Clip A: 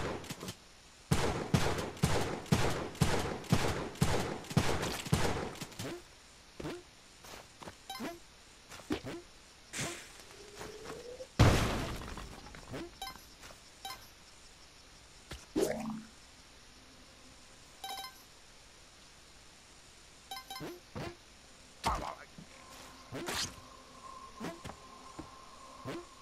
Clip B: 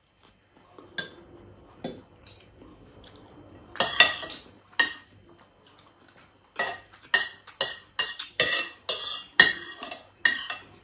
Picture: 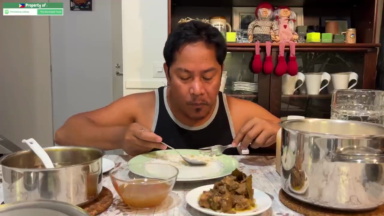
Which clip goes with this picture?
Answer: B